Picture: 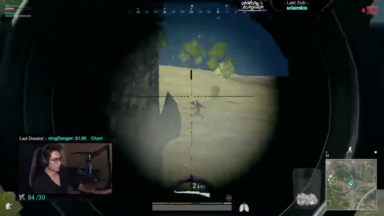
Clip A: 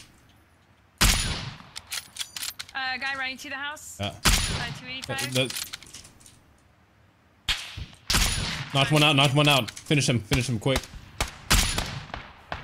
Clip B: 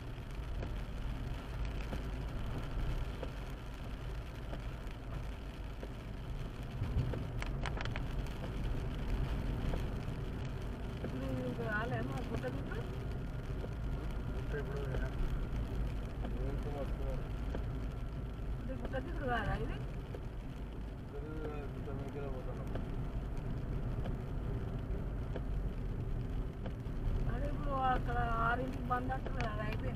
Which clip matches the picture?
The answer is A